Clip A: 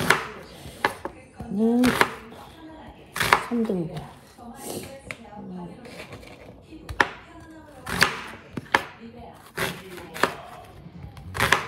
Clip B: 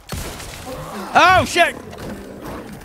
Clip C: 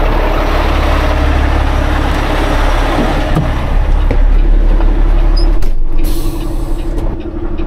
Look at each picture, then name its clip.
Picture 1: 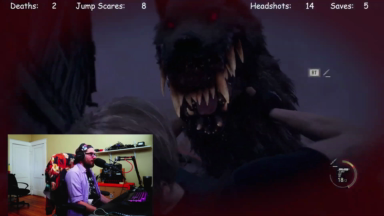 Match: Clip B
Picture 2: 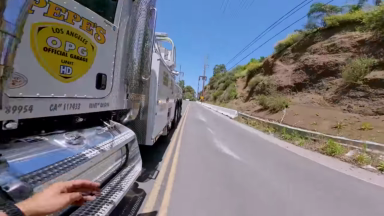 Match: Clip C